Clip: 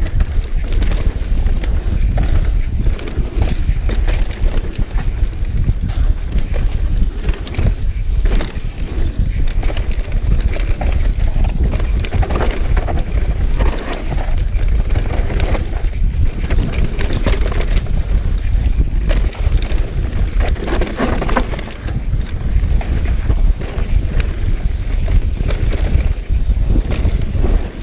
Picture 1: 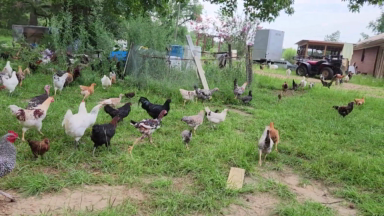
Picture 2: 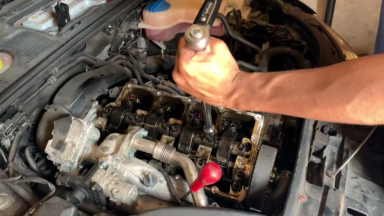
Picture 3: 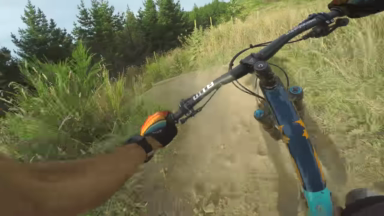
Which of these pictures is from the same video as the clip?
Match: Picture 3